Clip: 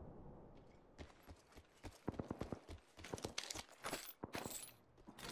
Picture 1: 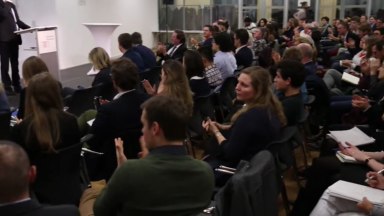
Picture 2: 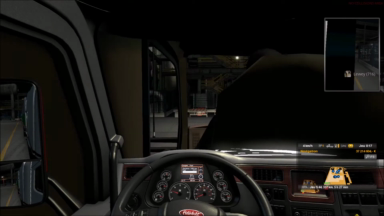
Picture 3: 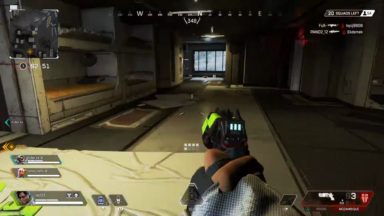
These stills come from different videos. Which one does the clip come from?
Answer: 3